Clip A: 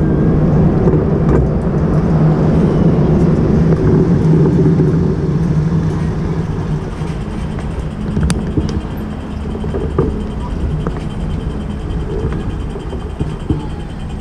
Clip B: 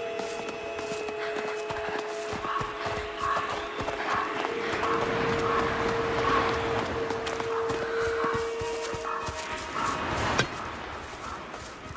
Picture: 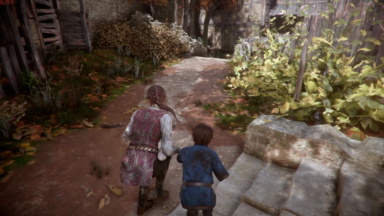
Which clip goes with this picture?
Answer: B